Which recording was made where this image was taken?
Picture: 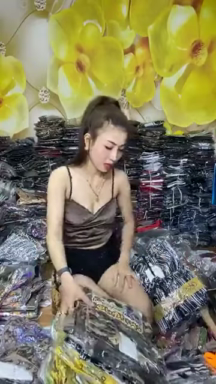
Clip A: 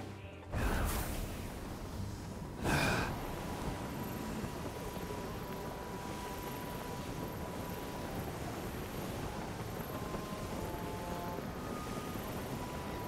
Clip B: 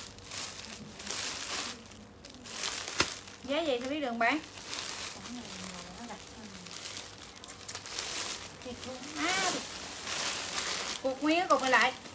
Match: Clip B